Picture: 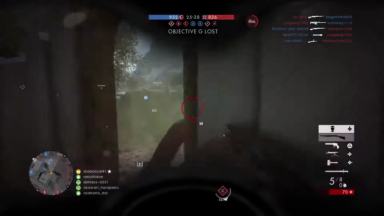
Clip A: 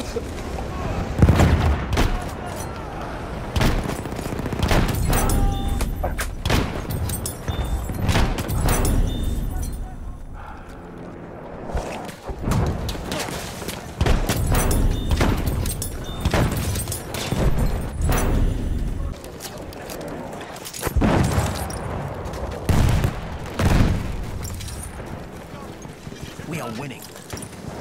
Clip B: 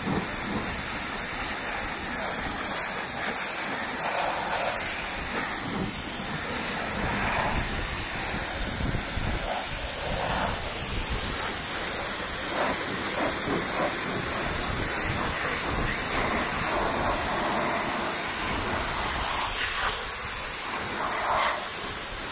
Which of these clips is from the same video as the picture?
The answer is A